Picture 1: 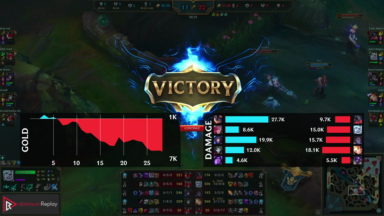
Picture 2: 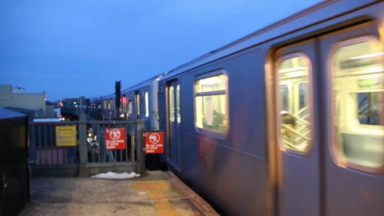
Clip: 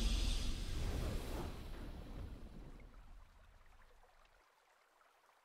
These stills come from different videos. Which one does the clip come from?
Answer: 1